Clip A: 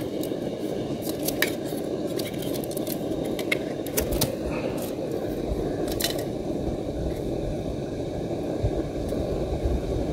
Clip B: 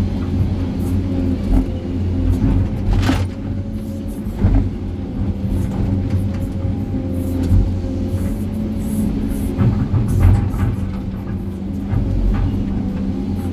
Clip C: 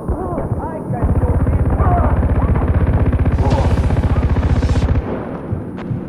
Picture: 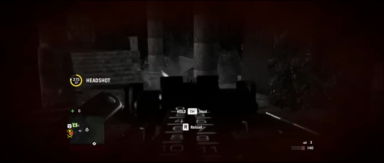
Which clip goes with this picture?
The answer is C